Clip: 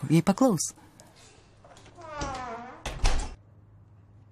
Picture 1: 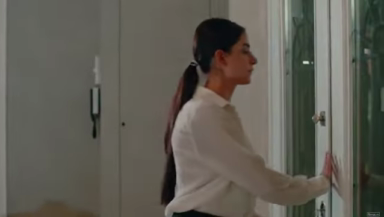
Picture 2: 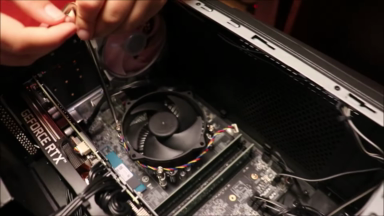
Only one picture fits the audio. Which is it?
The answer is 1